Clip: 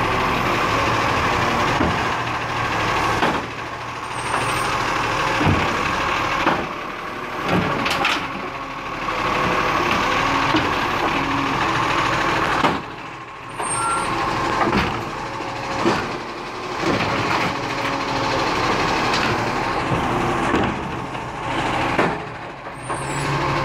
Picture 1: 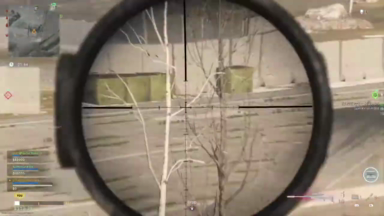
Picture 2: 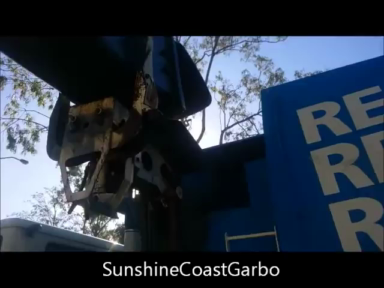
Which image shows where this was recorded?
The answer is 2